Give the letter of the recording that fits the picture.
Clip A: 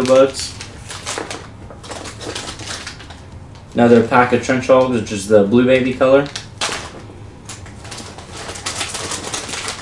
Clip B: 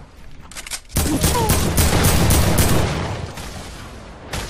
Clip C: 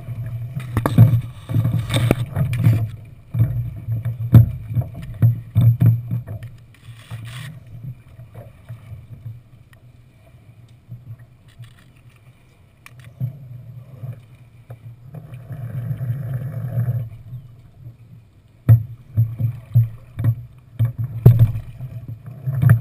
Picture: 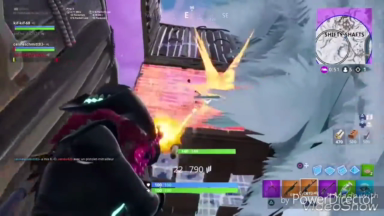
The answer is B